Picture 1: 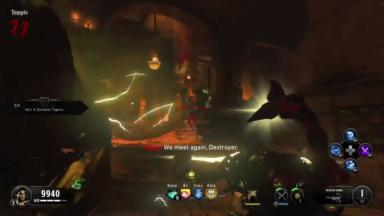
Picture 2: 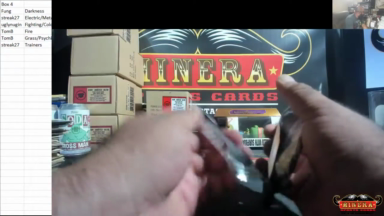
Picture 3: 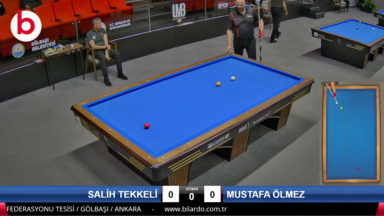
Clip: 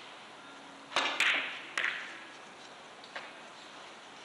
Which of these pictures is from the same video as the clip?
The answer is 3